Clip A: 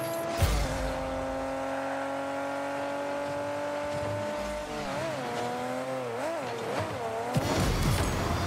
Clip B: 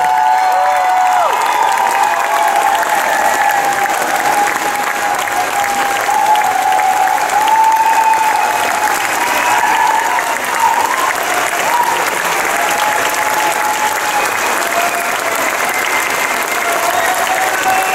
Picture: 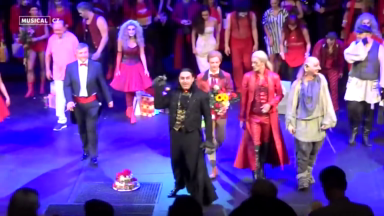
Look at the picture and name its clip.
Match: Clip B